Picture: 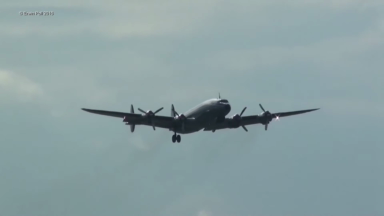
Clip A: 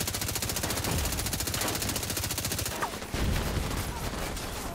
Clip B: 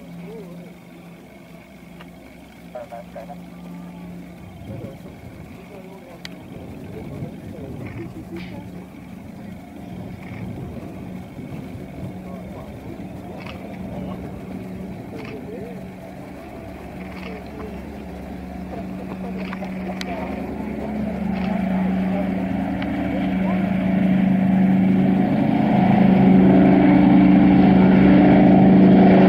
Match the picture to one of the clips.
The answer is B